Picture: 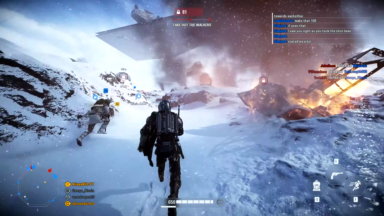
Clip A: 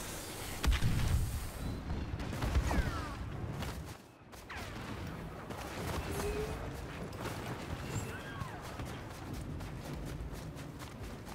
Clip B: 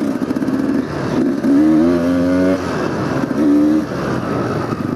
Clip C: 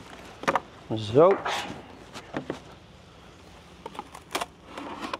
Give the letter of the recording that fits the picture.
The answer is A